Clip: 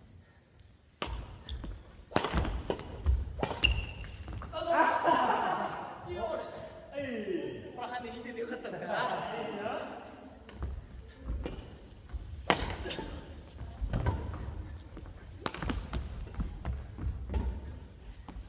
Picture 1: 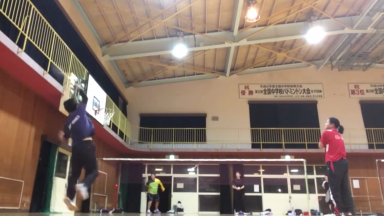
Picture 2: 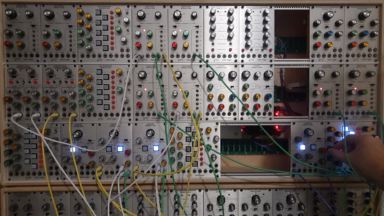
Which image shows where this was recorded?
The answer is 1